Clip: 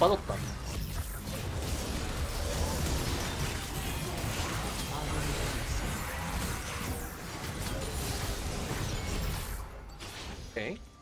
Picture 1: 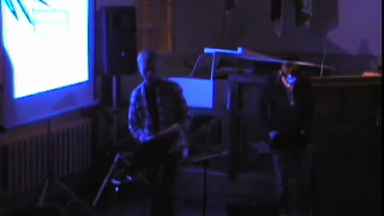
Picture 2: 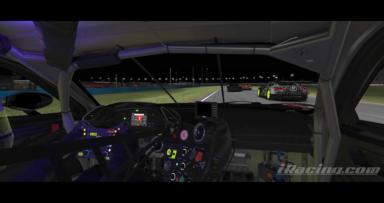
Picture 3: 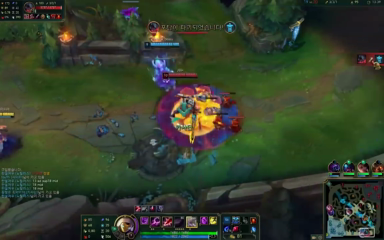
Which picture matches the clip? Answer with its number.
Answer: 3